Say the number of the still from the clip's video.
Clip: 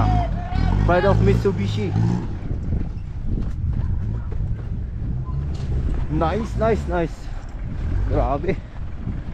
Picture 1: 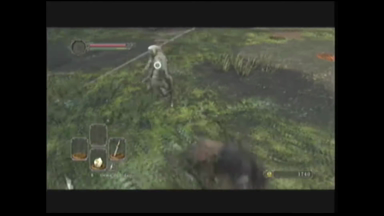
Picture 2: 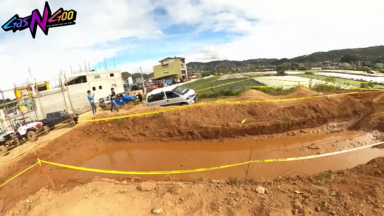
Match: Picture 2